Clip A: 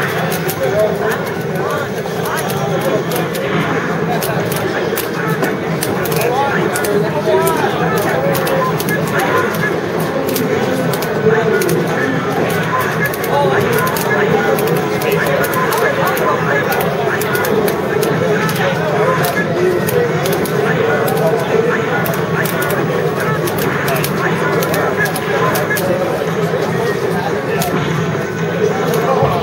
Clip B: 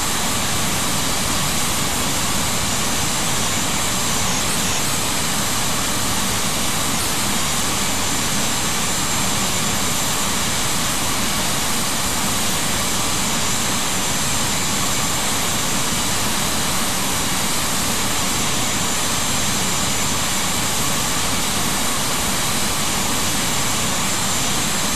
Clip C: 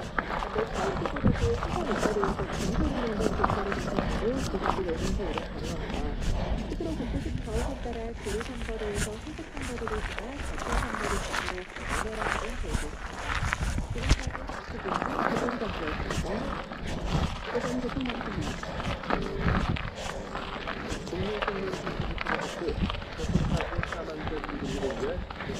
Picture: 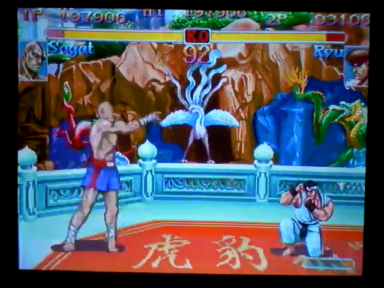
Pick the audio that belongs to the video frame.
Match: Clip A